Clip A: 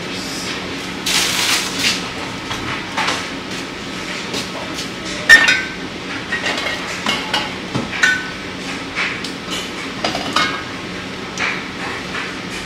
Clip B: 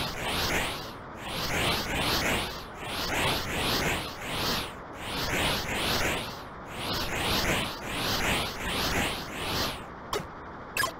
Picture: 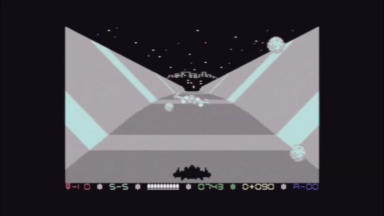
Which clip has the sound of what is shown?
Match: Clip B